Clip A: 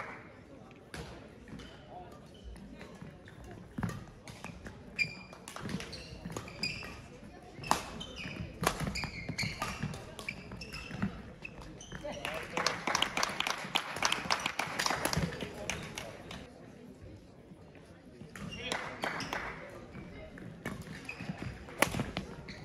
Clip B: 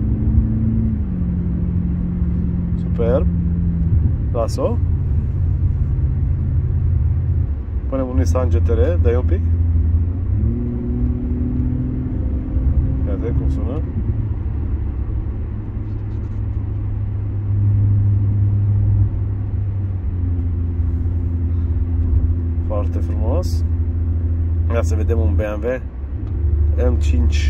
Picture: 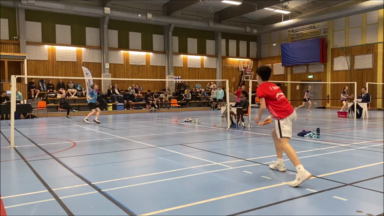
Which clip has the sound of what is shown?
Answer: A